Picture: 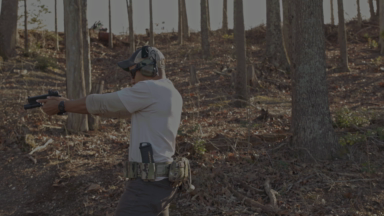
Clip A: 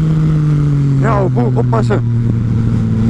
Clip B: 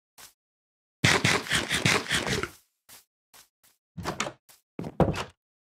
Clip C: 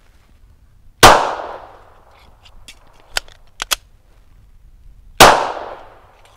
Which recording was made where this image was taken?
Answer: C